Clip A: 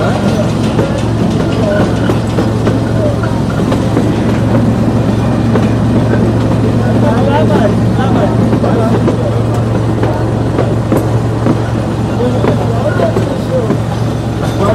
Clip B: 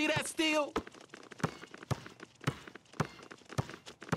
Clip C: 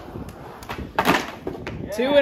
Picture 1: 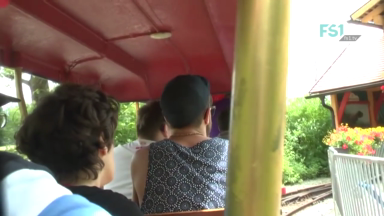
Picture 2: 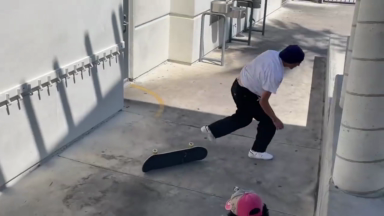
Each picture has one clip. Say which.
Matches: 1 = A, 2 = C